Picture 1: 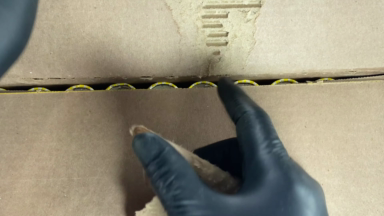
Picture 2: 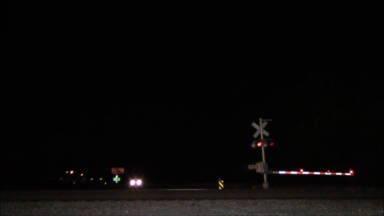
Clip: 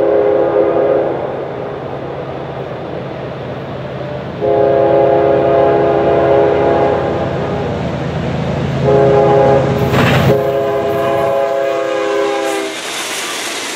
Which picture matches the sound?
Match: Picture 2